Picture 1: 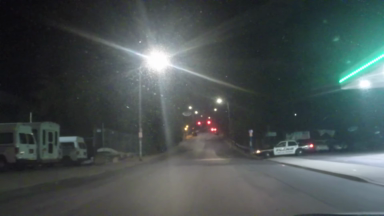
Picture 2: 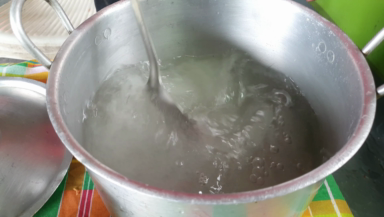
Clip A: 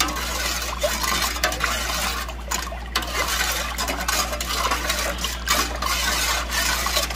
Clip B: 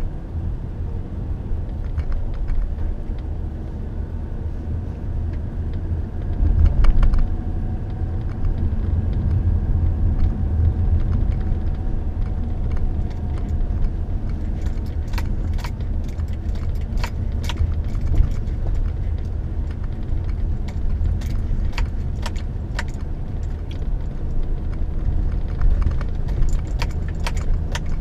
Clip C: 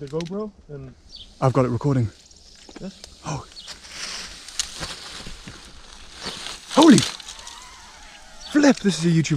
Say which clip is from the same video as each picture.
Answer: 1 B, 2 A